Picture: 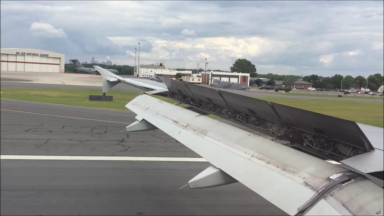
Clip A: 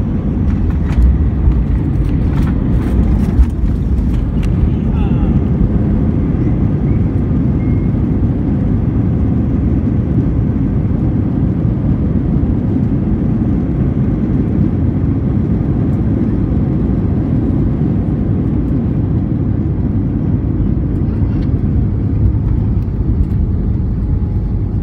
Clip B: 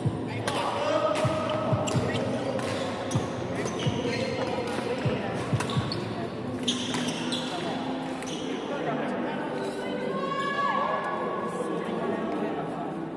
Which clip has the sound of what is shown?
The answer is A